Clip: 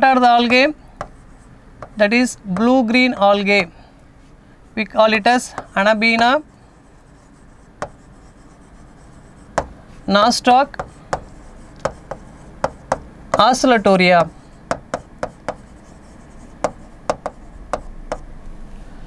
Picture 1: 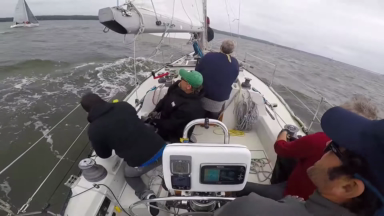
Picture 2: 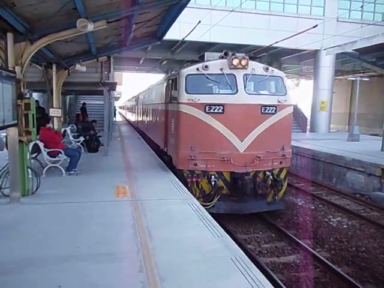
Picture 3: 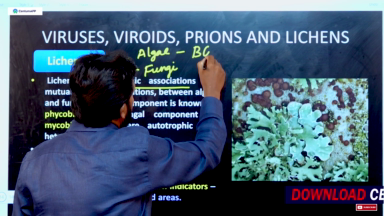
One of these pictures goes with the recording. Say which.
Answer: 3